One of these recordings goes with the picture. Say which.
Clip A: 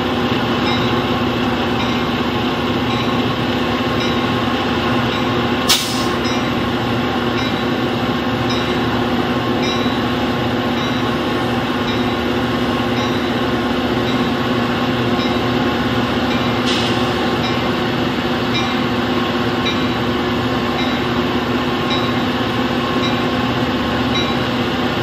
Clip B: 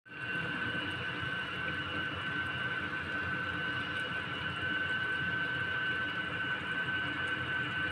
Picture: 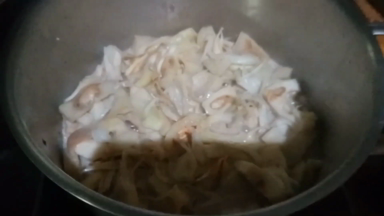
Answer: B